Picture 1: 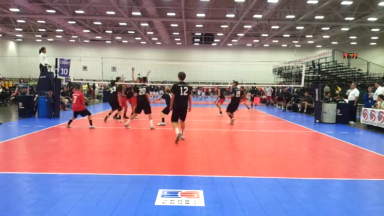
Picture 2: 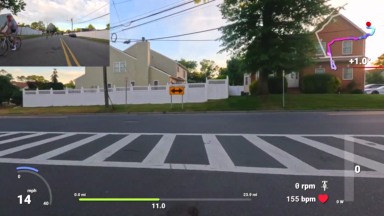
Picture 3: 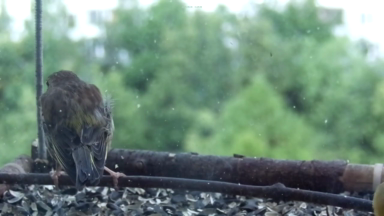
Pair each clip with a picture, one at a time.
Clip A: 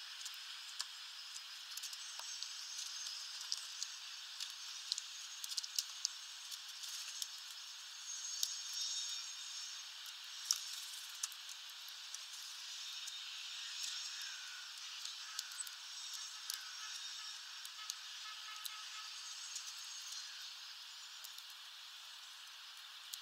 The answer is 3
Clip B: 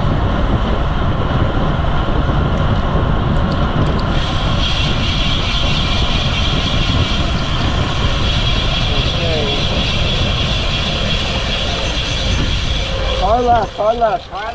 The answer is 2